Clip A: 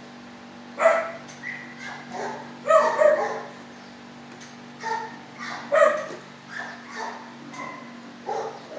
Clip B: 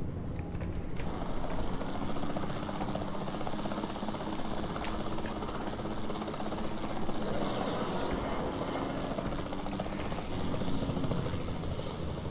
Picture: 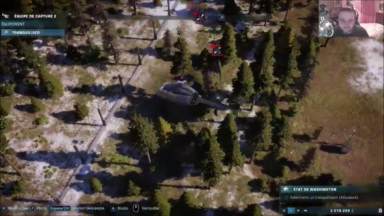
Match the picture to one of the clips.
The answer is B